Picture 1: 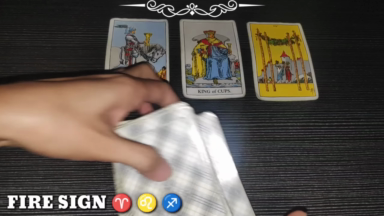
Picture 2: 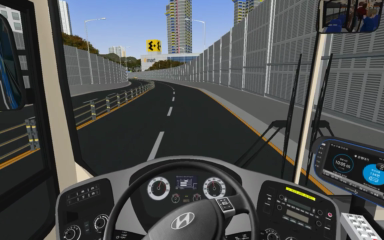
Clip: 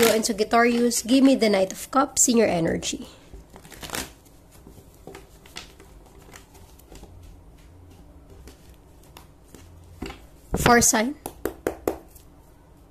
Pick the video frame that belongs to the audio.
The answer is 1